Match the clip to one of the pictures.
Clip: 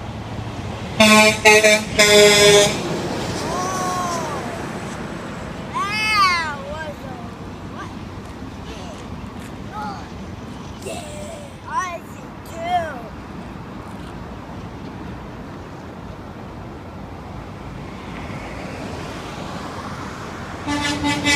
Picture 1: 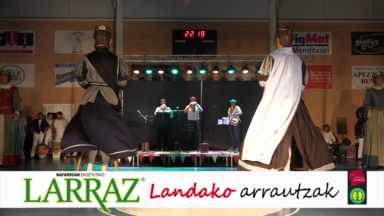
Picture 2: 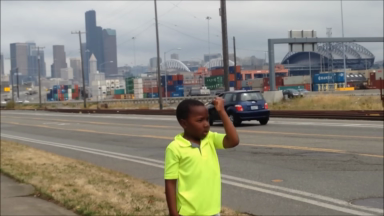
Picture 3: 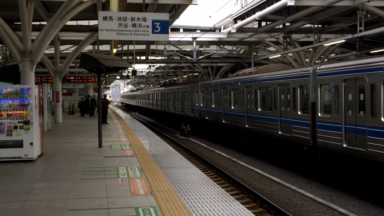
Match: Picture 2